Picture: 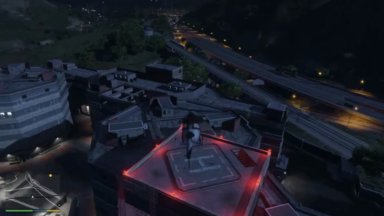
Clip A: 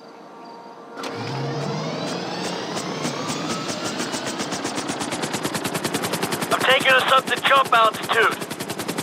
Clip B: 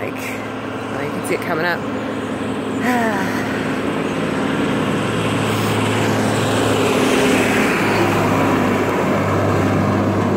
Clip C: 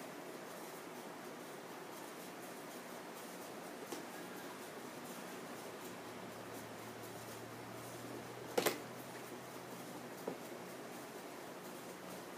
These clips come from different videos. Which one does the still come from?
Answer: A